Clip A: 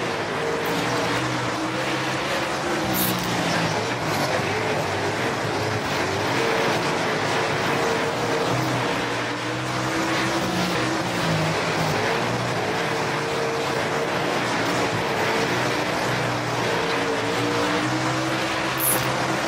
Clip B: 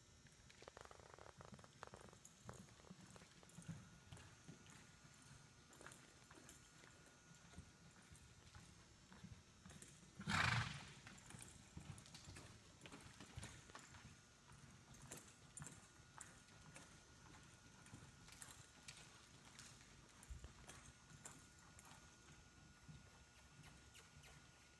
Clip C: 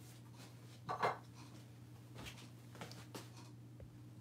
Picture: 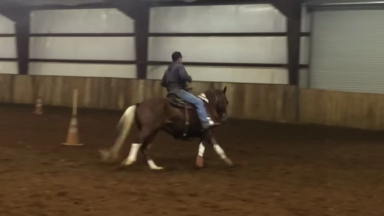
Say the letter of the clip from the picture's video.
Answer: B